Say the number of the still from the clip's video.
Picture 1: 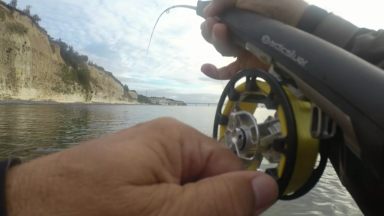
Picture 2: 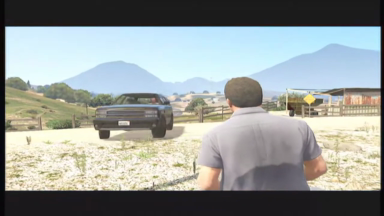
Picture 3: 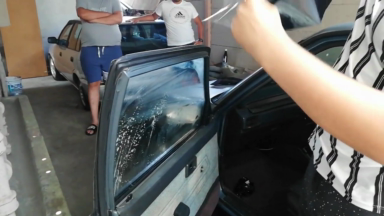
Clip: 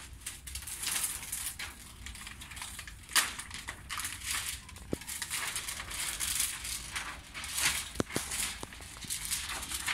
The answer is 3